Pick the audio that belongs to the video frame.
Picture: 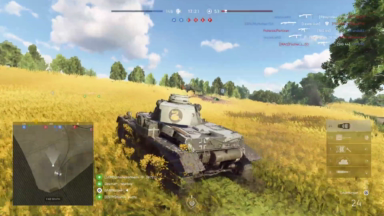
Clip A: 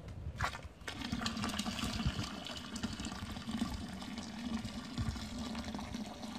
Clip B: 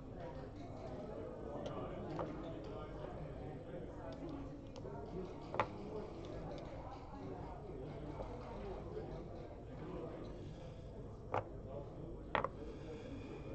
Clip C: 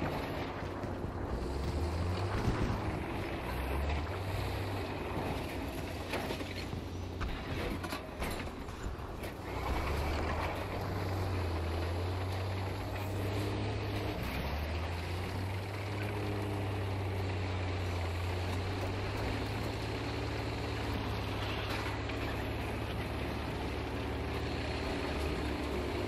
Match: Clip C